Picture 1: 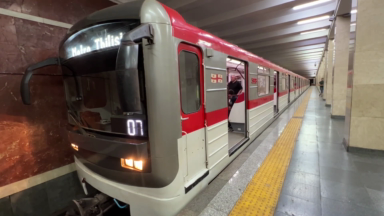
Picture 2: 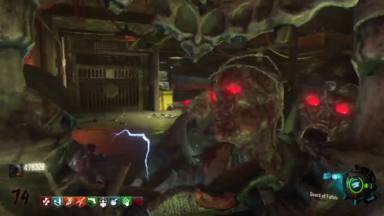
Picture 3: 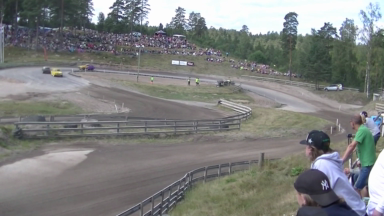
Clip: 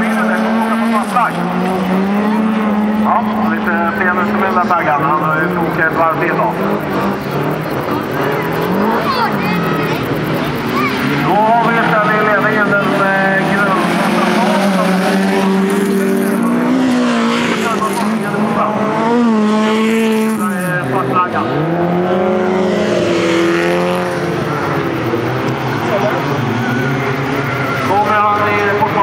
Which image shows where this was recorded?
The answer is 3